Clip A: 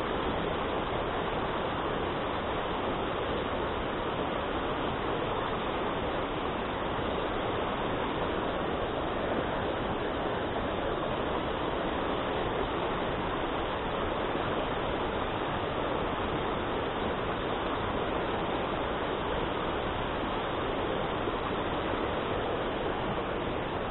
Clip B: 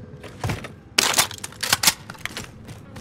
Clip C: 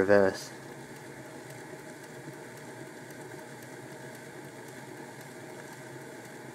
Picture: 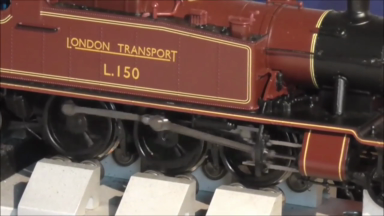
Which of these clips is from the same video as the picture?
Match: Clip C